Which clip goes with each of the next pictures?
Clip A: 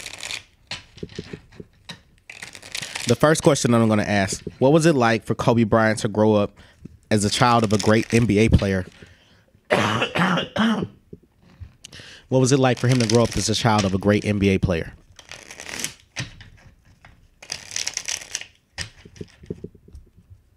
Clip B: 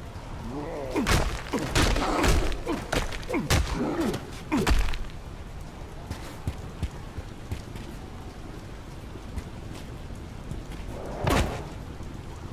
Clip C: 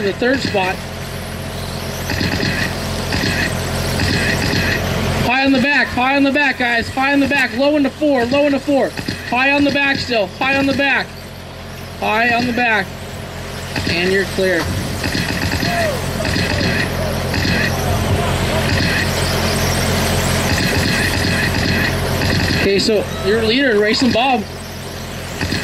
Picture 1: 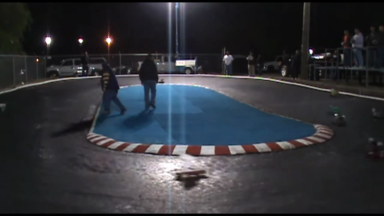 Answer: C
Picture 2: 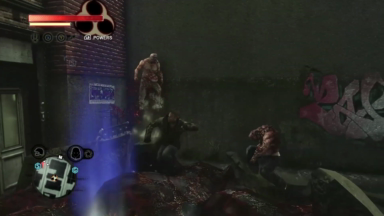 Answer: B